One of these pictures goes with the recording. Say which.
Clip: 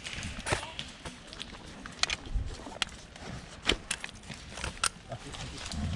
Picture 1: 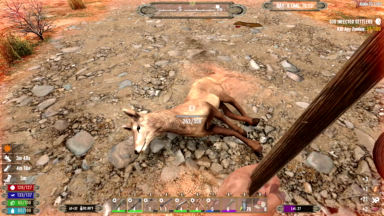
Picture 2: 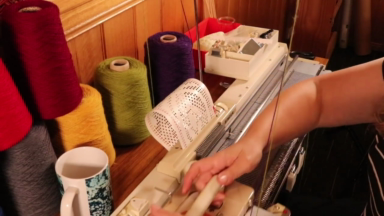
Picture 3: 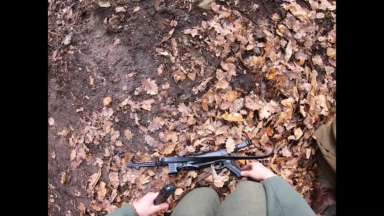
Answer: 3